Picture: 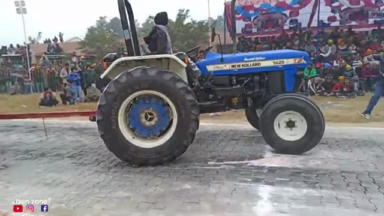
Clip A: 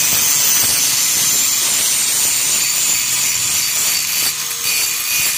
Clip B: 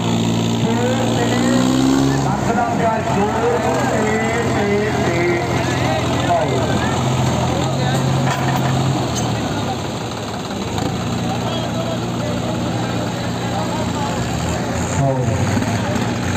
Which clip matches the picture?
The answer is B